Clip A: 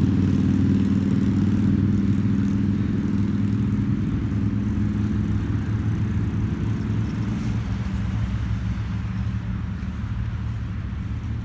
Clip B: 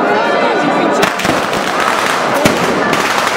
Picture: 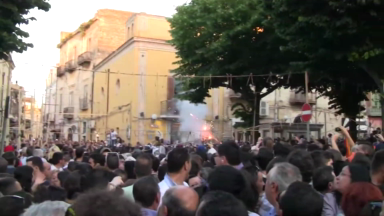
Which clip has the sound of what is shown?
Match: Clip B